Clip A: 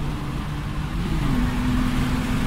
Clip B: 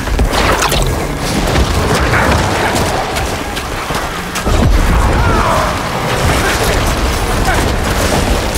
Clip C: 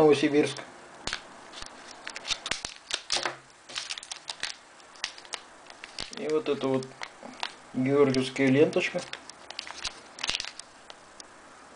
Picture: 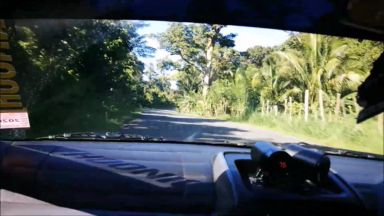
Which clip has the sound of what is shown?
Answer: A